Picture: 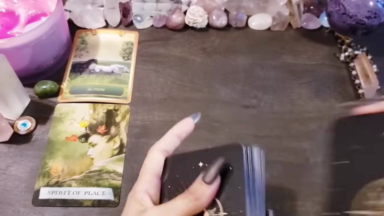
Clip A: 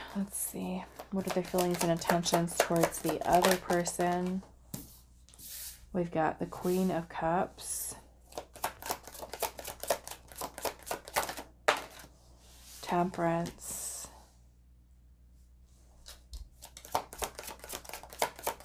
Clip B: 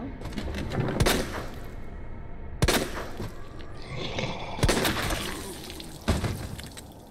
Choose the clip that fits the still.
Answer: A